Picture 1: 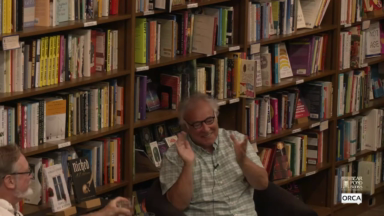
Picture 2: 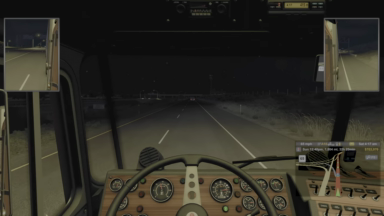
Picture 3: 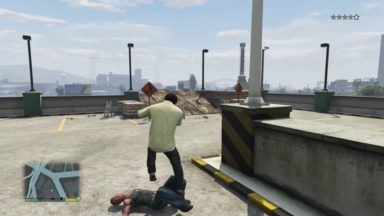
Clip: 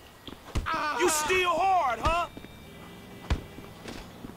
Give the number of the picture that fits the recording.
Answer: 3